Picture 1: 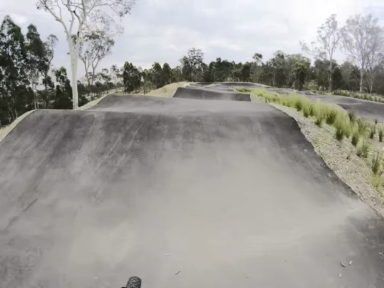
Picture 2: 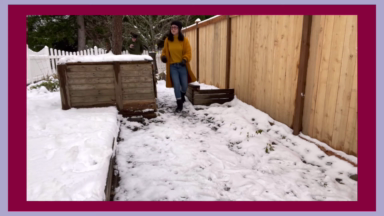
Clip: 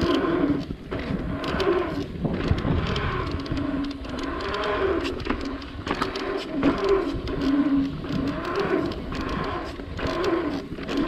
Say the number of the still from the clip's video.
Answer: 1